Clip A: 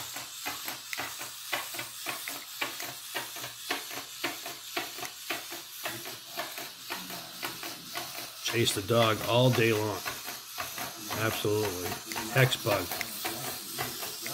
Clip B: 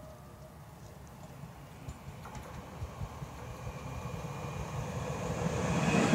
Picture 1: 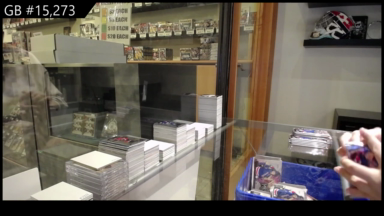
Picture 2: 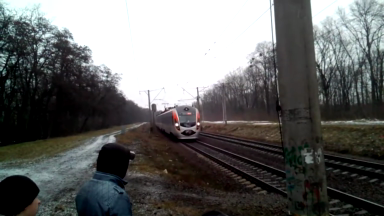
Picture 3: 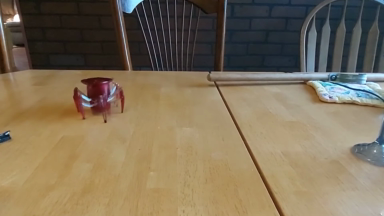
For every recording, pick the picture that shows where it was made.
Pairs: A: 3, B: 2